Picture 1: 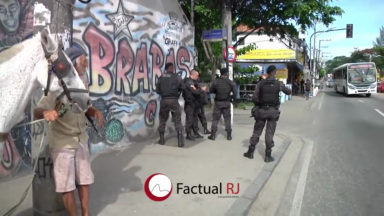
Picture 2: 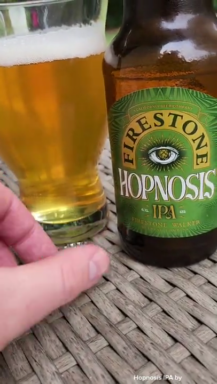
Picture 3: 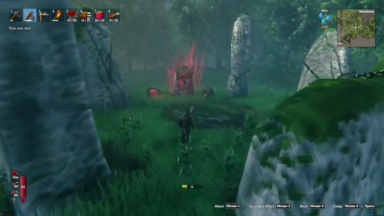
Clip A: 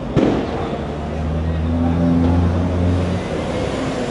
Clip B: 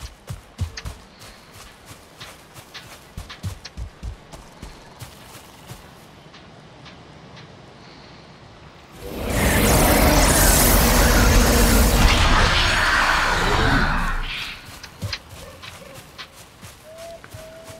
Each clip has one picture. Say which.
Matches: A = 1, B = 3